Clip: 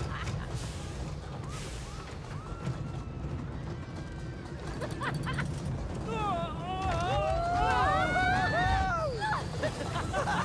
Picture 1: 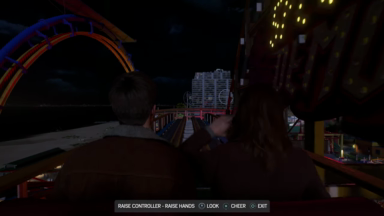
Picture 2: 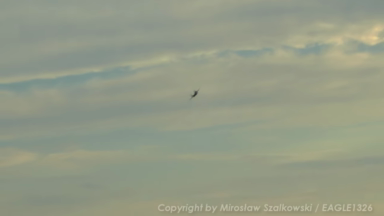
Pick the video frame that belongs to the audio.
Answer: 1